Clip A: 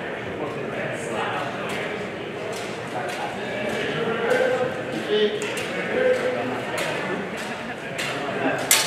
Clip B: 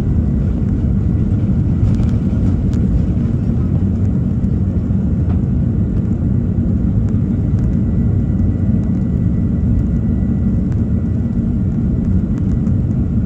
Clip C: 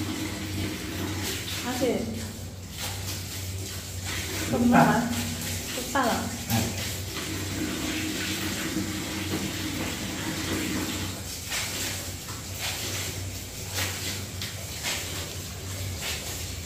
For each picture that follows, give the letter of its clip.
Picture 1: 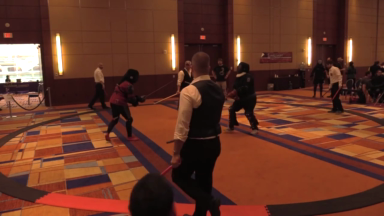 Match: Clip A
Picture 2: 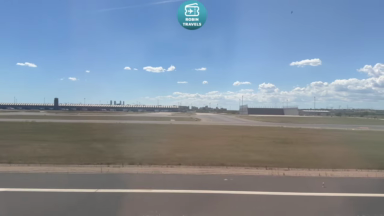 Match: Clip B